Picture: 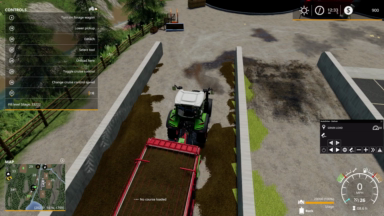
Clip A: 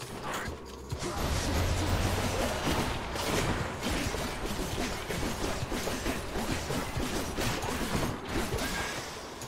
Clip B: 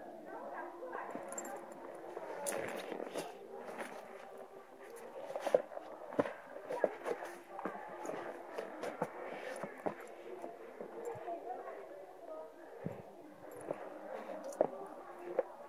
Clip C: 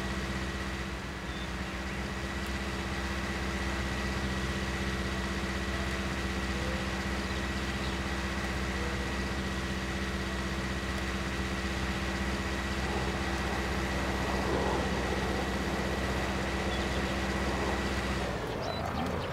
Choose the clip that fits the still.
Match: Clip C